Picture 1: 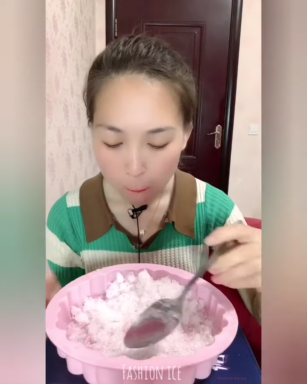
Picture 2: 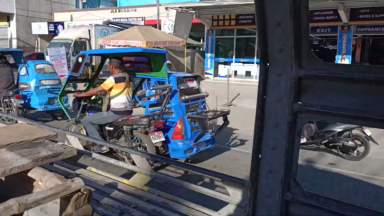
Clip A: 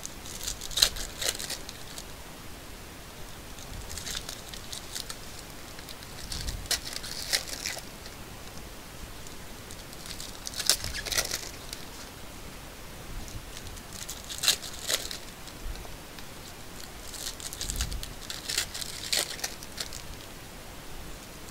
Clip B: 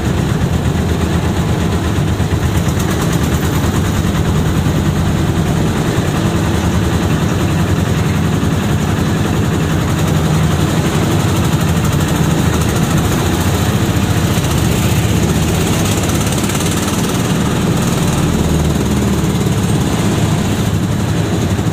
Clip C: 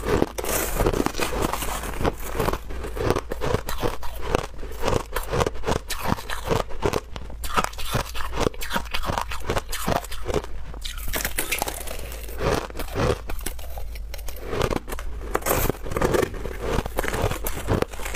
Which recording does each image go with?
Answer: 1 C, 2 B